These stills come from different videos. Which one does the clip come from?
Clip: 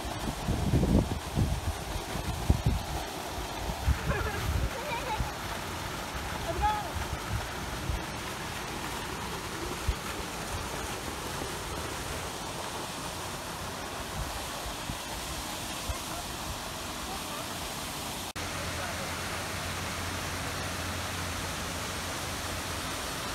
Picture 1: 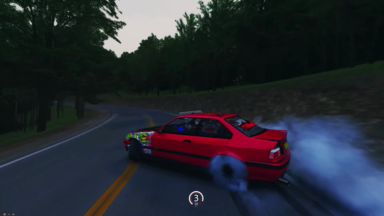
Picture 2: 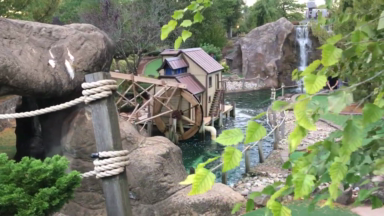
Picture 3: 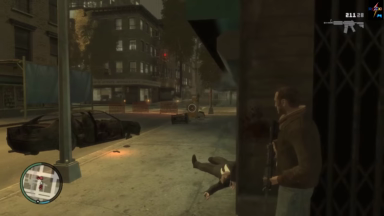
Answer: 2